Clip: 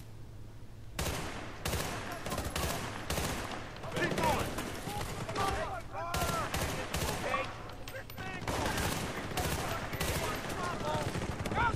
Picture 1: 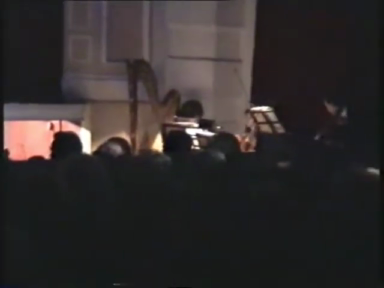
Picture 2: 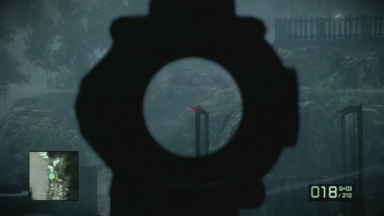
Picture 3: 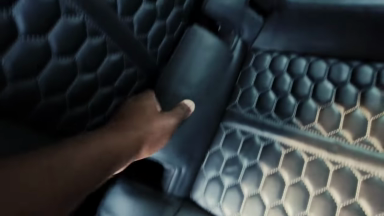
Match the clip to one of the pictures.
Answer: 2